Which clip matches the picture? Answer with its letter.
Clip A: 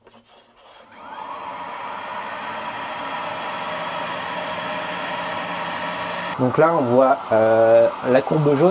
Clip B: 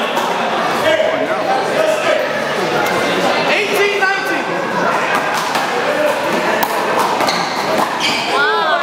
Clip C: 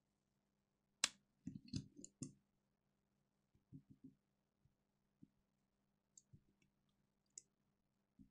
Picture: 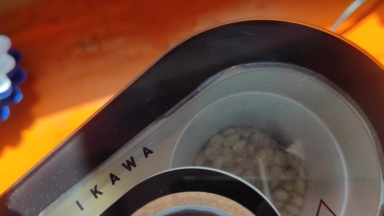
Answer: A